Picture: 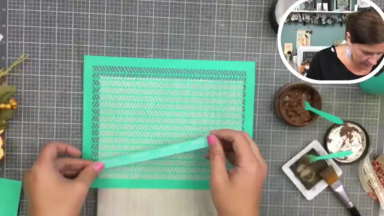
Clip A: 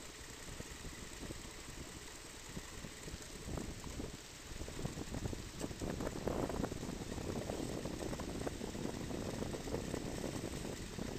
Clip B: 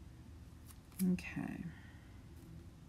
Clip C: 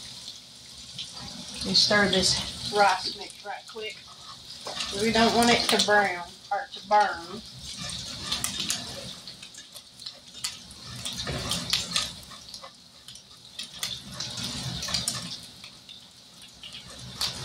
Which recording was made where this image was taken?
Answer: B